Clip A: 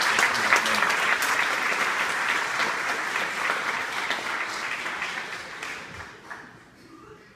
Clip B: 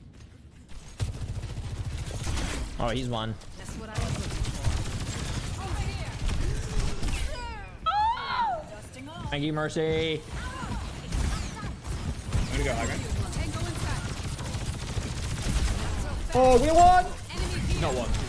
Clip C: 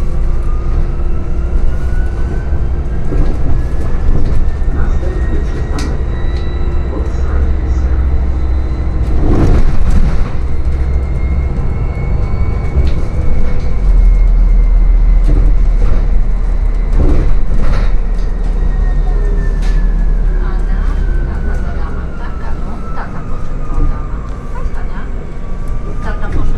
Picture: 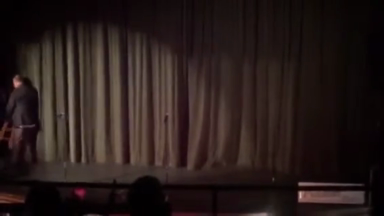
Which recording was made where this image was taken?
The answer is A